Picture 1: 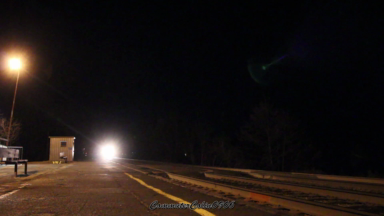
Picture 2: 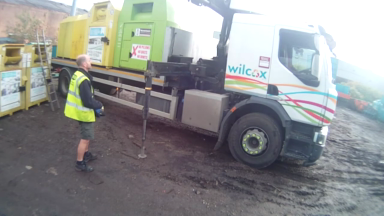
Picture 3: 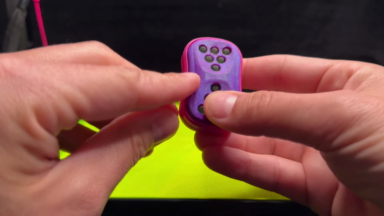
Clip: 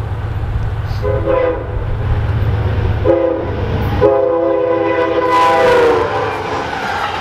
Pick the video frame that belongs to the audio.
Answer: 1